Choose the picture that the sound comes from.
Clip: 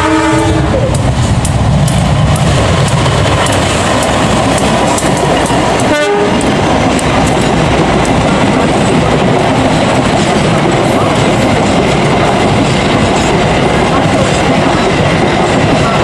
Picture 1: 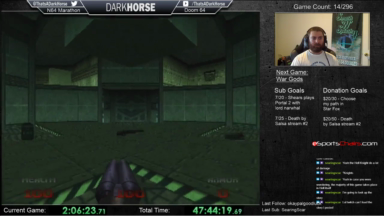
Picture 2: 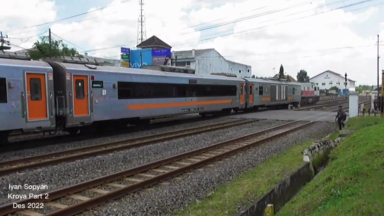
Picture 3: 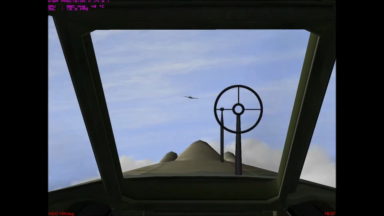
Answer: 2